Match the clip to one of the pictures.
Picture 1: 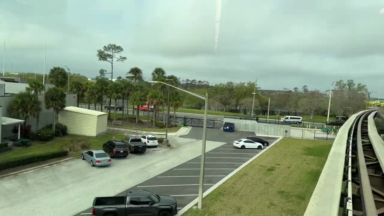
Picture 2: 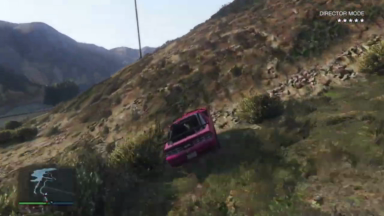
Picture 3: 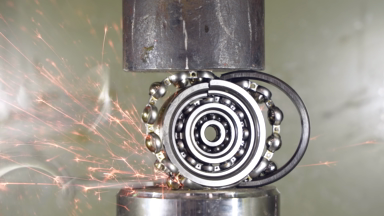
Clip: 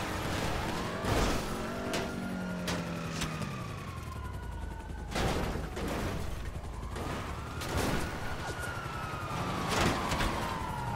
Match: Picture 2